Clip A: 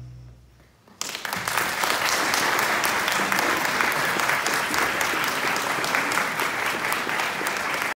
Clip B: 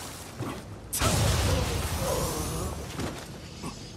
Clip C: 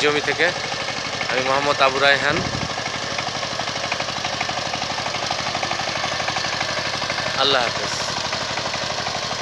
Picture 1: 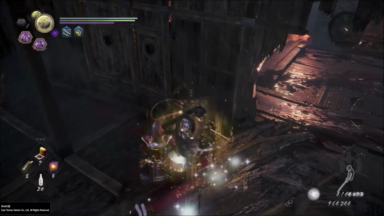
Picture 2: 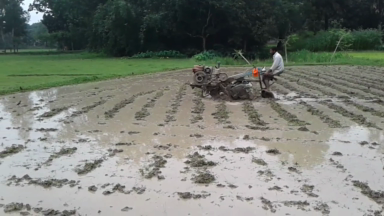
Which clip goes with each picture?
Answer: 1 B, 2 C